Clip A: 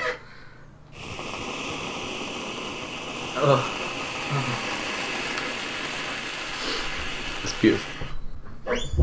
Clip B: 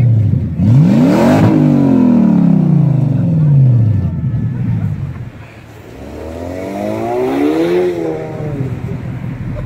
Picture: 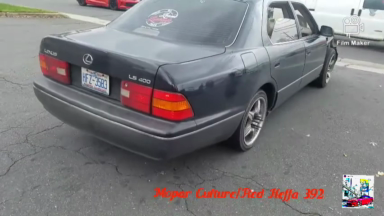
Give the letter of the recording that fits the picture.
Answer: B